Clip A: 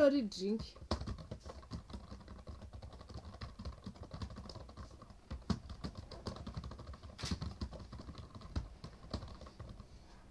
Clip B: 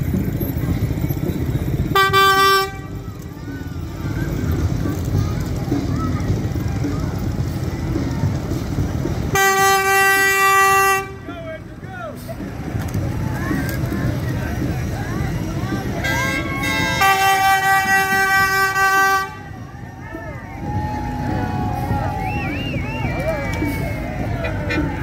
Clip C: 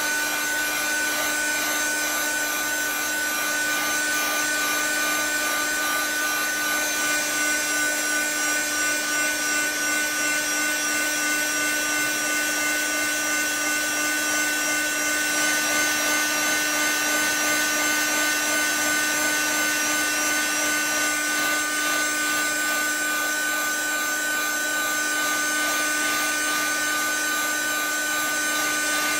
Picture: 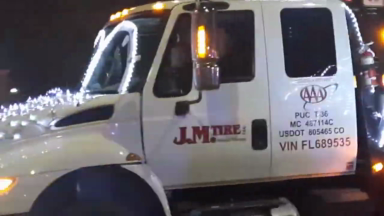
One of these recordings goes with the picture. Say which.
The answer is B